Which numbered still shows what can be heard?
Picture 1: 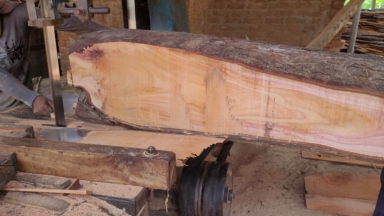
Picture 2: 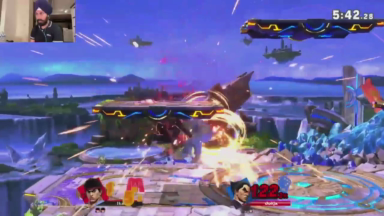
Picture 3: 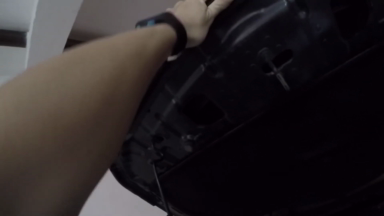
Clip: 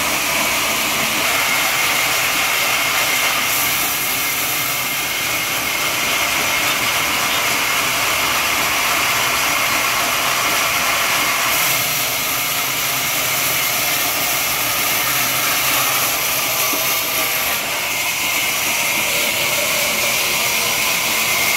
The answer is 1